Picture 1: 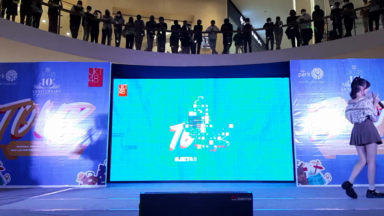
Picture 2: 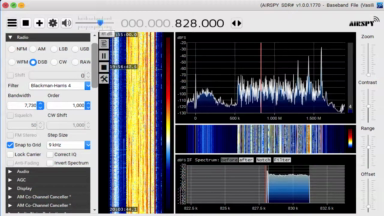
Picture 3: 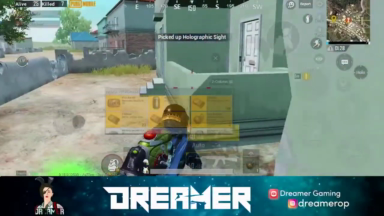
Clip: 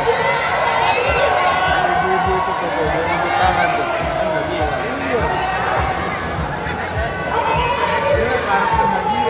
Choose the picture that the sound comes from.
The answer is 1